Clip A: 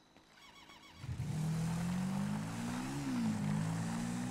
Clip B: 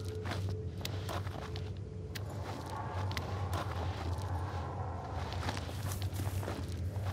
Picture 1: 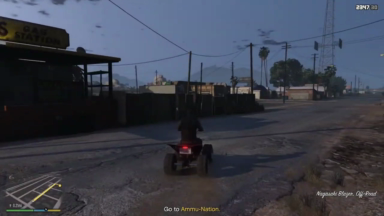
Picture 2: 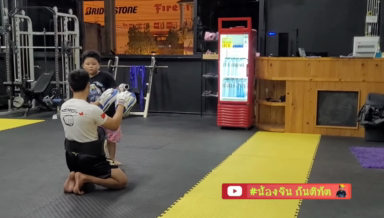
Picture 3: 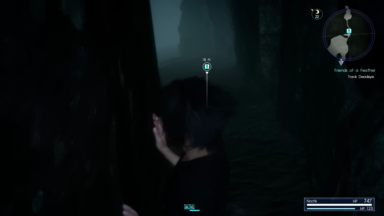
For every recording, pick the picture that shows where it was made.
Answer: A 1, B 3